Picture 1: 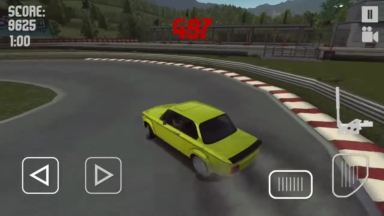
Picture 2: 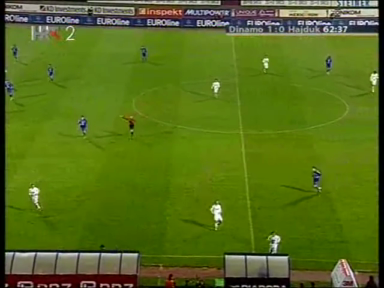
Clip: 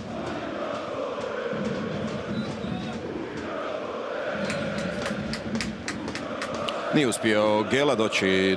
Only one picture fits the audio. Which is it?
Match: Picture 2